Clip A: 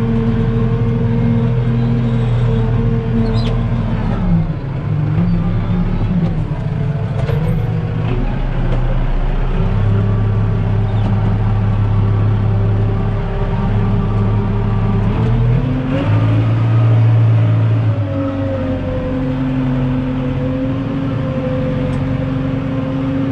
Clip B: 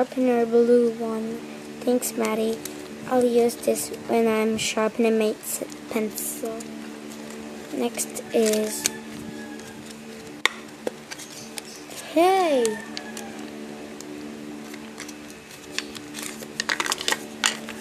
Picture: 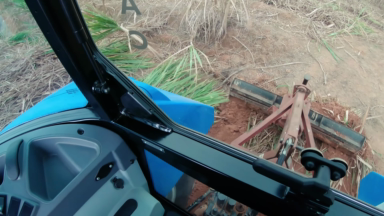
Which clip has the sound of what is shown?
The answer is A